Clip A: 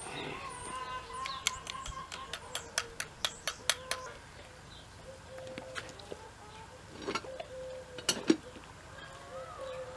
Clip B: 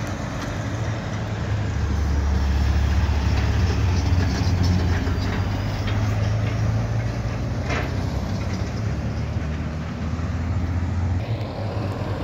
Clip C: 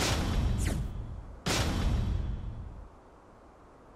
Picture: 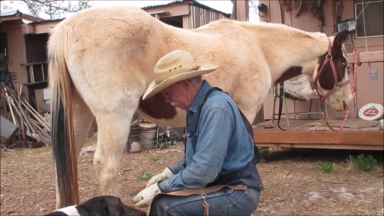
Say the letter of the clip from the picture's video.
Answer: A